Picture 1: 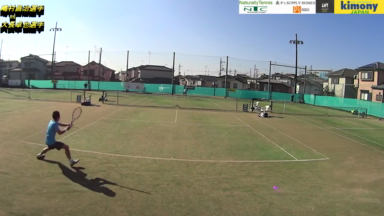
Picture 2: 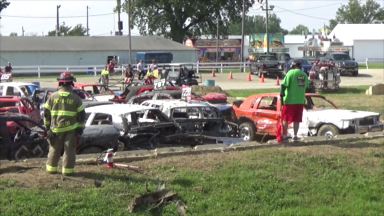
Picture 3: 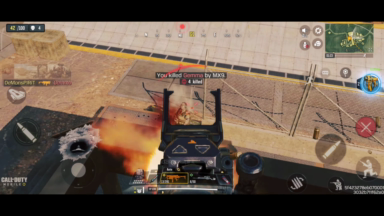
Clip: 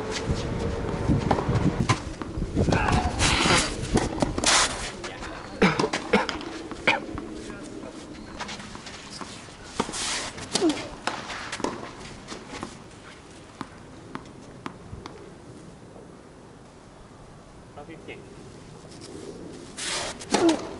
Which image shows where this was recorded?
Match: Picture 1